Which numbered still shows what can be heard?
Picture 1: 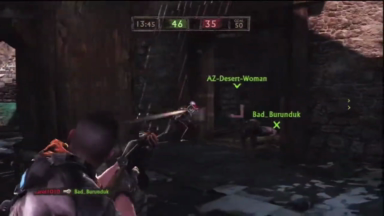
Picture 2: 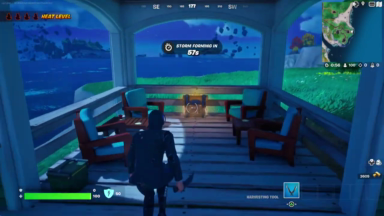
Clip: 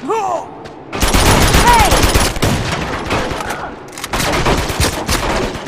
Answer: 1